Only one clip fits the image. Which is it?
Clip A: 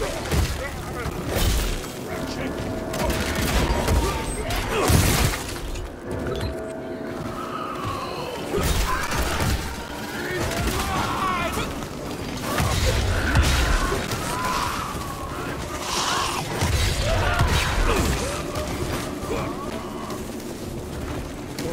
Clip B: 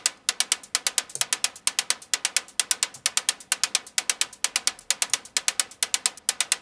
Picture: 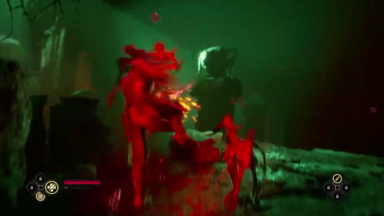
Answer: A